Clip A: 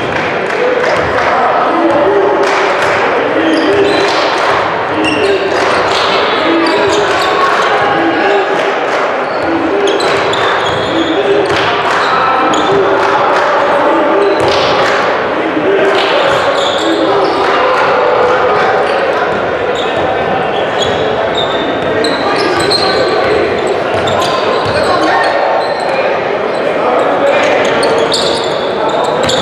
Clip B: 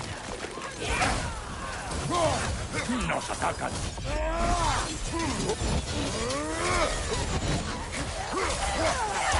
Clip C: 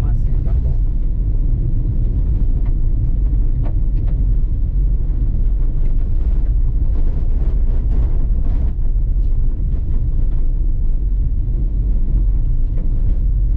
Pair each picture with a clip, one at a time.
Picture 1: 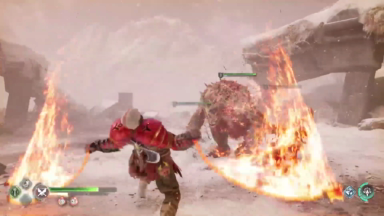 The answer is B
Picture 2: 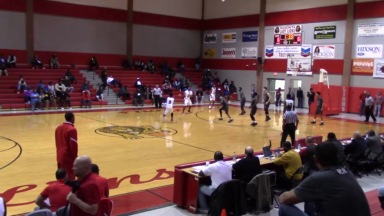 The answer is A